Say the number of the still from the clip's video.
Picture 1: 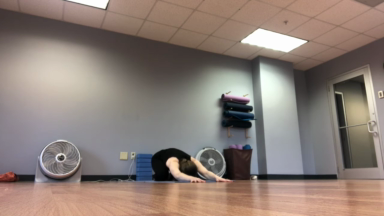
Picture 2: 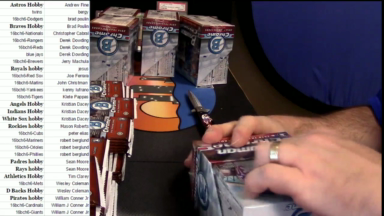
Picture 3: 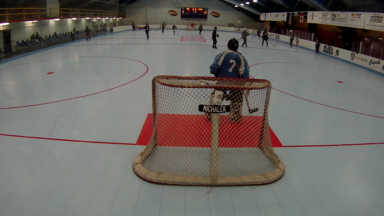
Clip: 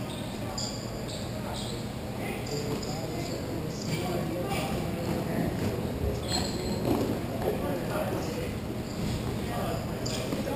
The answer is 3